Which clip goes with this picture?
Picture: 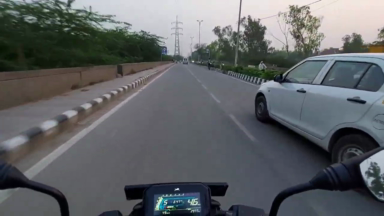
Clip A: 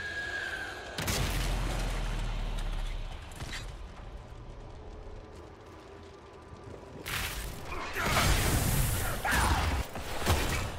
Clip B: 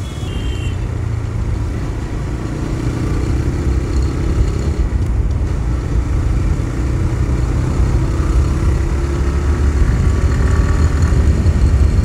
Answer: B